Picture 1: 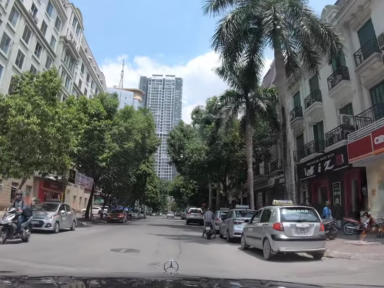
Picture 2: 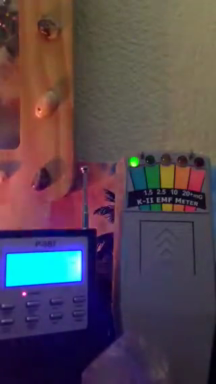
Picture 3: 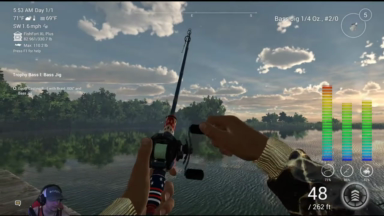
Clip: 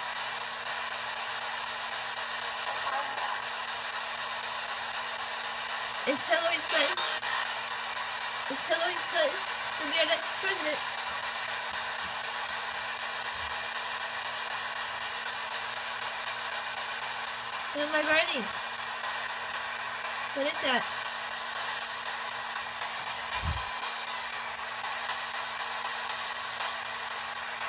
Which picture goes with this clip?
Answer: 2